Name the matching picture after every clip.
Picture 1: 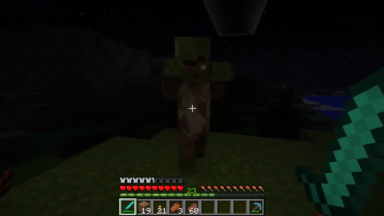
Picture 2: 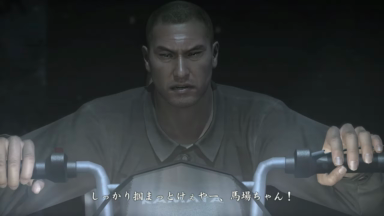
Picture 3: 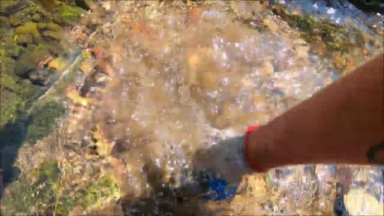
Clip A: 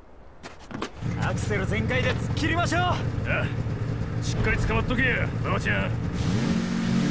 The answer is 2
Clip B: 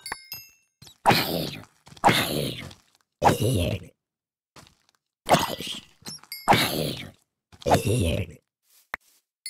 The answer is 1